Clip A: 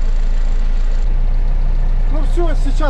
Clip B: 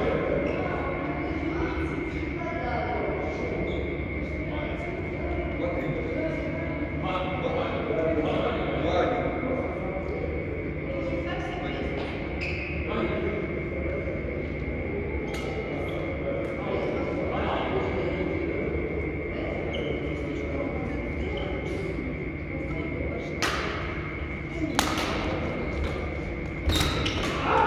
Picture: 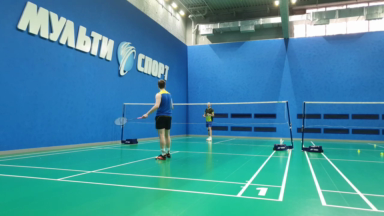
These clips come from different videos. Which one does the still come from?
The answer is B